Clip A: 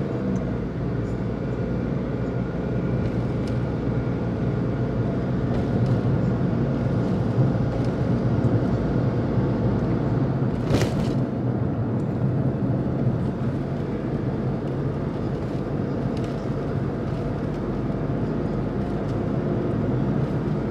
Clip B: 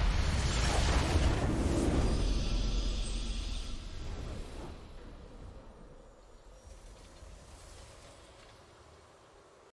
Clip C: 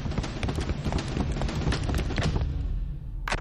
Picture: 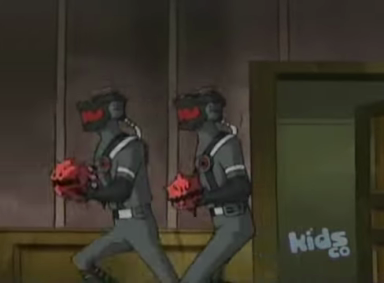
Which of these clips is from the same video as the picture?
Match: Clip C